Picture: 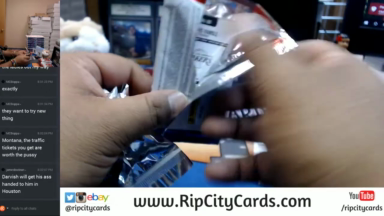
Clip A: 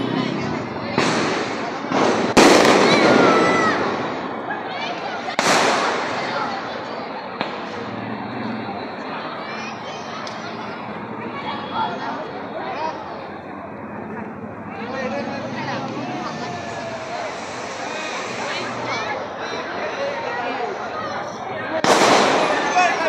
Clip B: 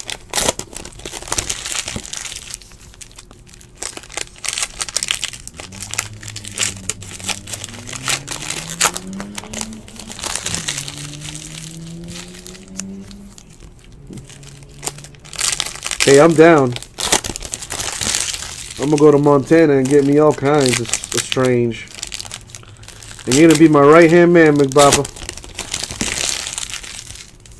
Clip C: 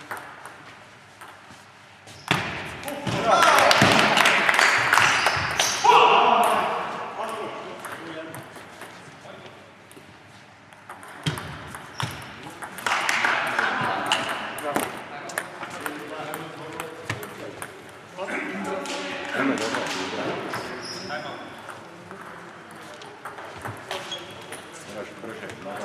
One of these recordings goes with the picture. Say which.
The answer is B